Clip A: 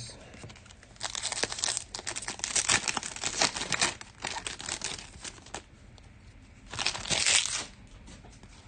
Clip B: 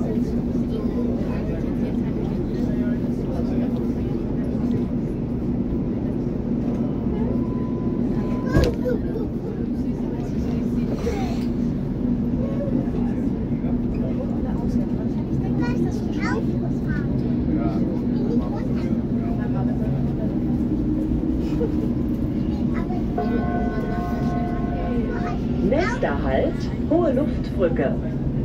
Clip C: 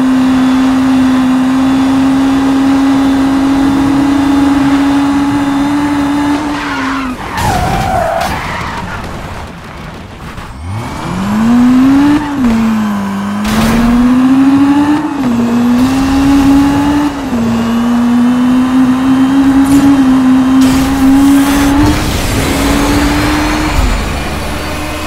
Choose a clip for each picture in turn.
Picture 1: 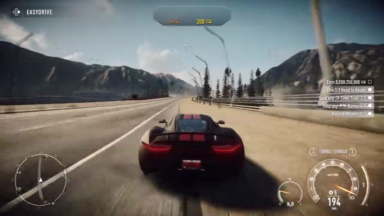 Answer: C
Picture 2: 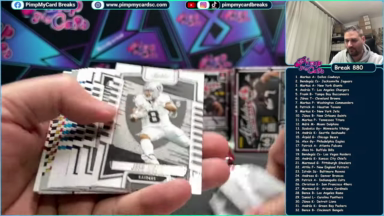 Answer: A